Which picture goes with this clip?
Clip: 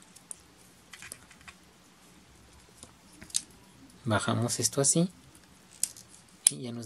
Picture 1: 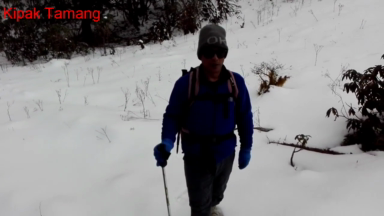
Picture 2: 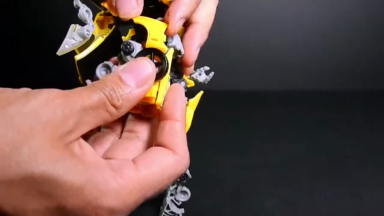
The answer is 2